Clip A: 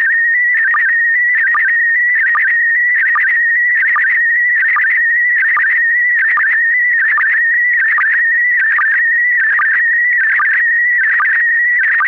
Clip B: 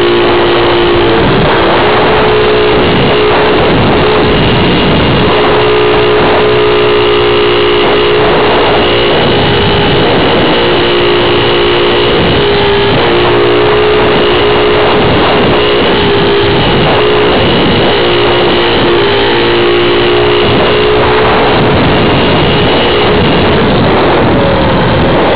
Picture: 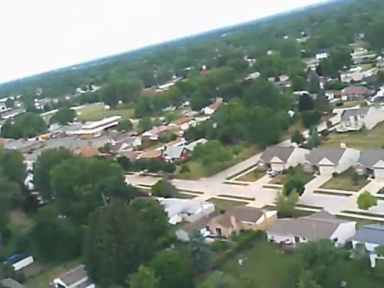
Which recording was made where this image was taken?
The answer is B